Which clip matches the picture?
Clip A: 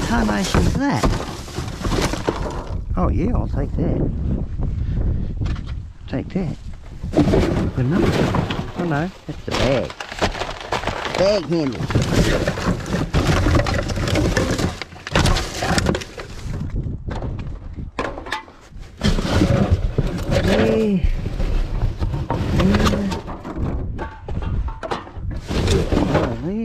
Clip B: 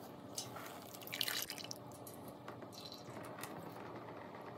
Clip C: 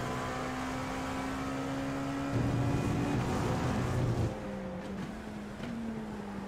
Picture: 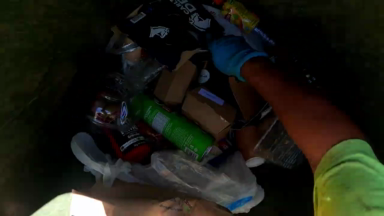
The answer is A